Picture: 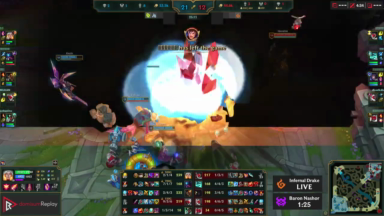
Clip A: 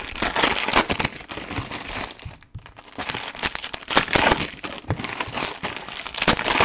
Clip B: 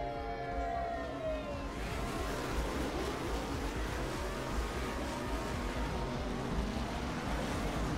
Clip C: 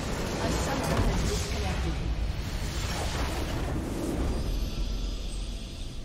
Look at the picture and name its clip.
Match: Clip C